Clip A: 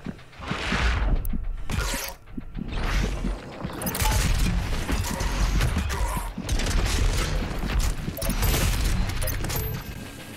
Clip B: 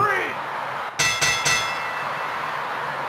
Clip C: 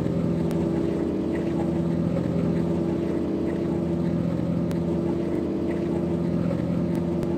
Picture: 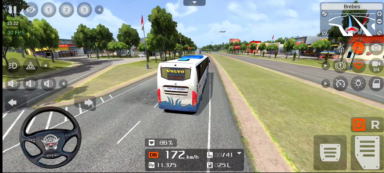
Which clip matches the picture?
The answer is C